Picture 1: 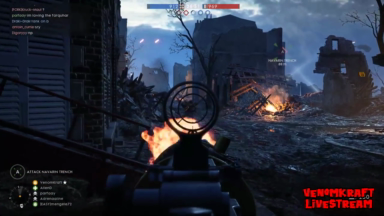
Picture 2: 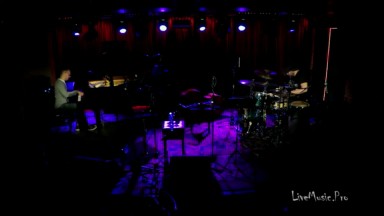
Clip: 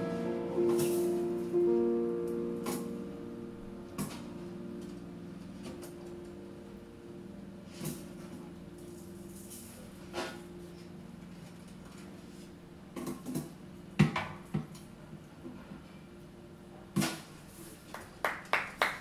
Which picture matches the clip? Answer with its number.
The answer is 2